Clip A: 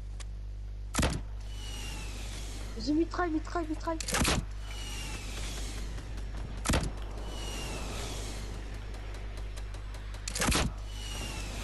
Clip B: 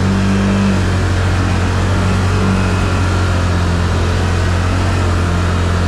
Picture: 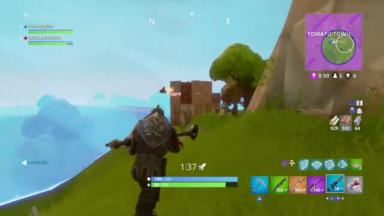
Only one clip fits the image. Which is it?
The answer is A